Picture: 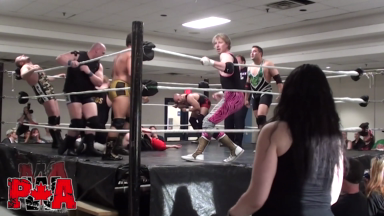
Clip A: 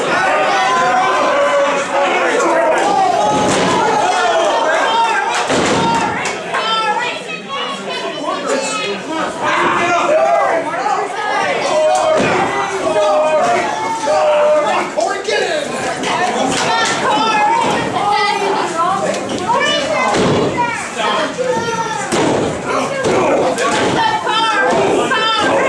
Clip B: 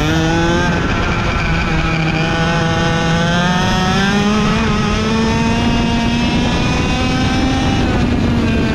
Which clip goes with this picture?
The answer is A